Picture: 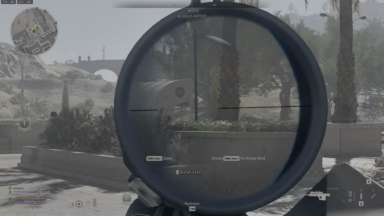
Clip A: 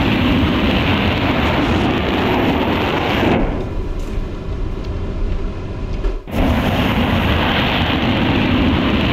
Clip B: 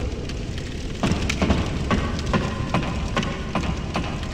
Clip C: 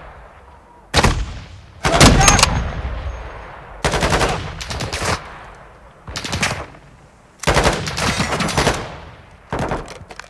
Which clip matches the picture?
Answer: C